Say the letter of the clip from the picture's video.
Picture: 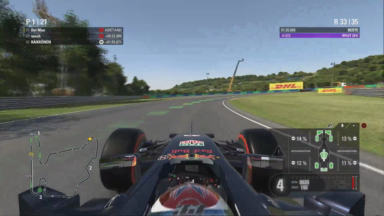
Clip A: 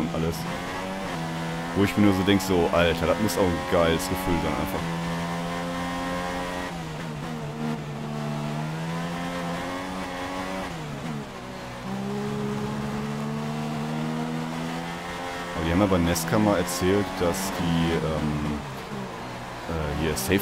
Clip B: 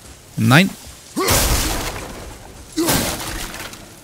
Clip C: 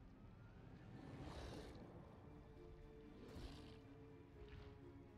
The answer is A